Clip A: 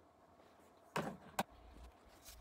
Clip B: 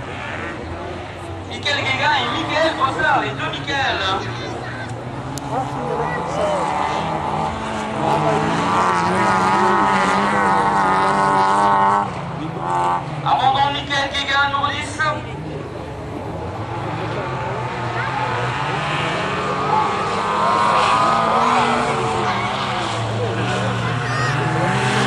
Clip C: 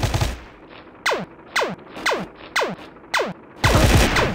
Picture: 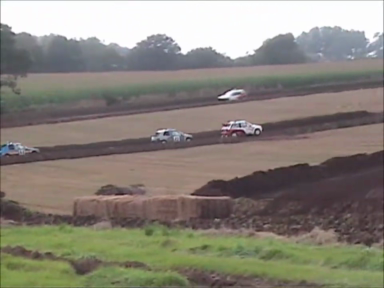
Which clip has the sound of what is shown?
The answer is B